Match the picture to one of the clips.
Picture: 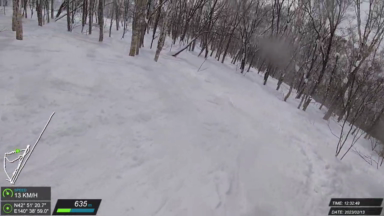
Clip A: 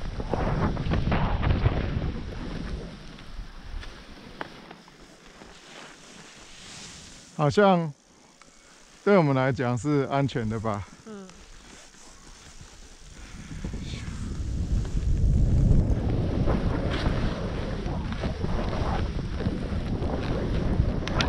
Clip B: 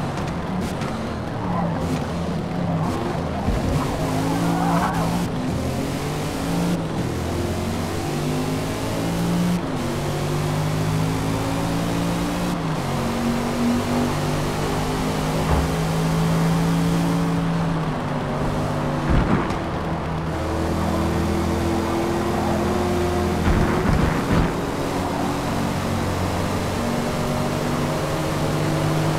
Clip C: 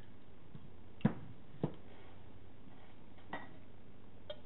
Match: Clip A